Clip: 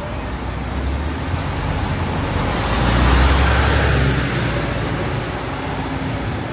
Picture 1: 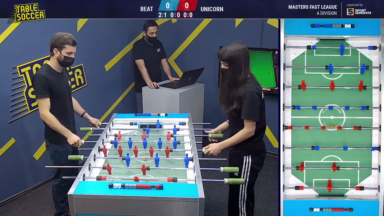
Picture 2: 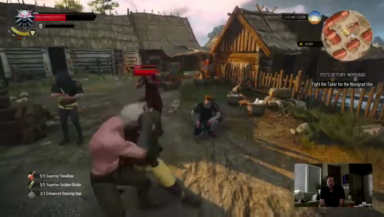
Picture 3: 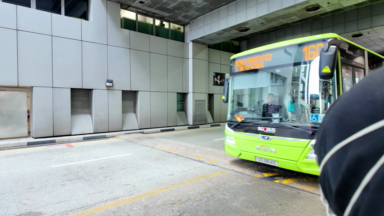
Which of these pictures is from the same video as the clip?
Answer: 3